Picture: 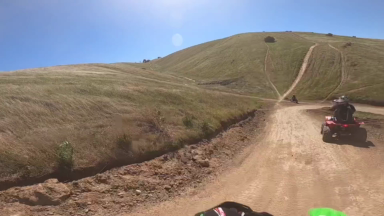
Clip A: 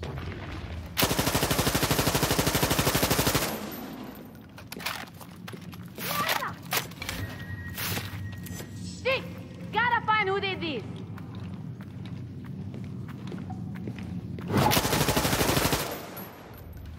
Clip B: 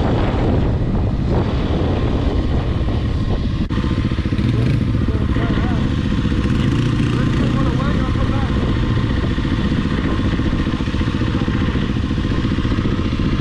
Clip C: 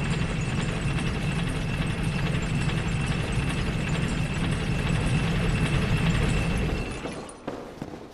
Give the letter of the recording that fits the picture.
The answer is B